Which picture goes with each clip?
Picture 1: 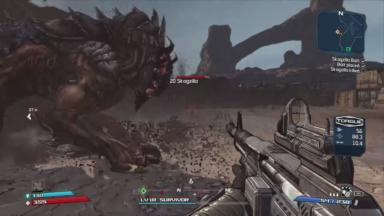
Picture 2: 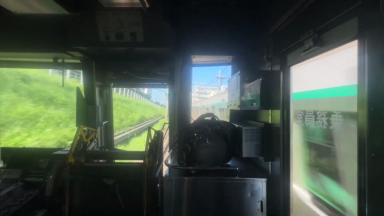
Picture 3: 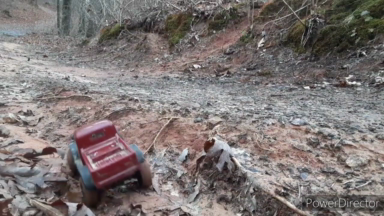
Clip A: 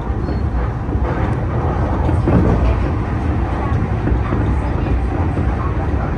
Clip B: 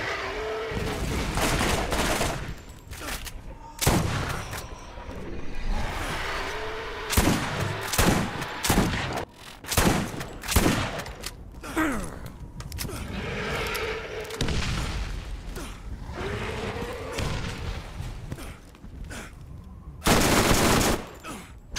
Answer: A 2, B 1